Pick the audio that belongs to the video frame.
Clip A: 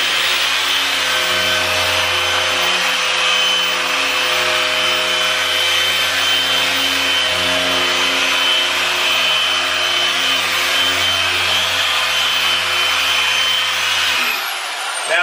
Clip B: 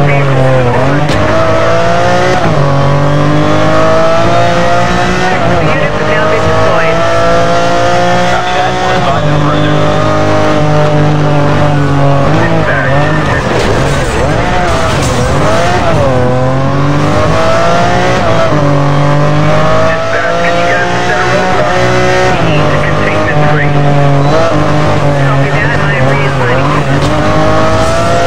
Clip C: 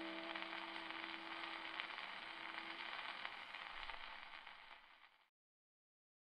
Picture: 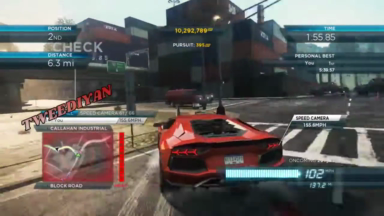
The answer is B